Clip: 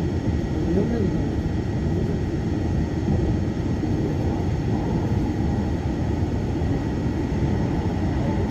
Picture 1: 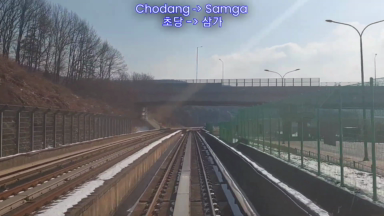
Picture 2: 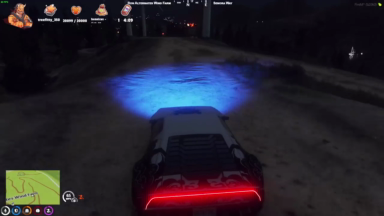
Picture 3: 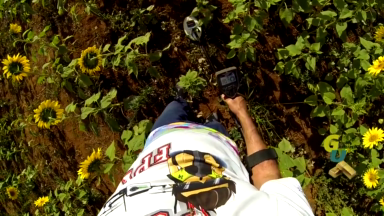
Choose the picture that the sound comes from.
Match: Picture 1